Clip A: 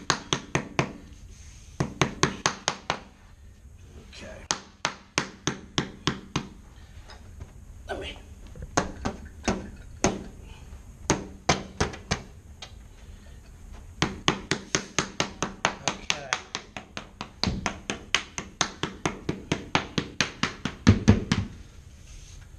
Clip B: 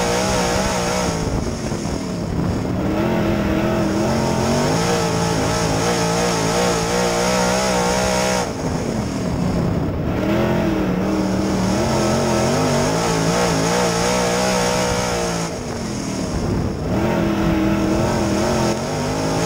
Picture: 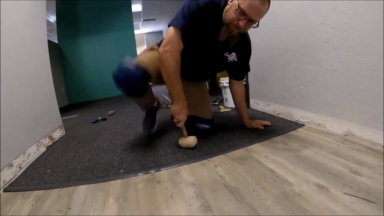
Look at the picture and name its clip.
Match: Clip A